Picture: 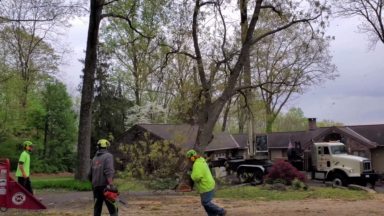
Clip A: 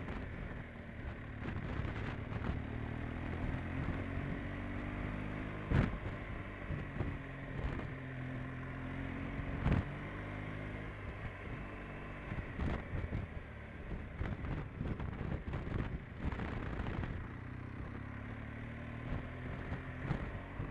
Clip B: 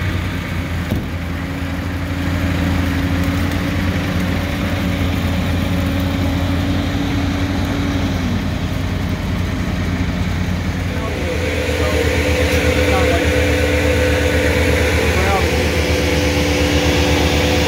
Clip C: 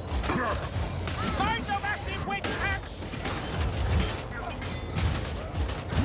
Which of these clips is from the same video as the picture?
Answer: B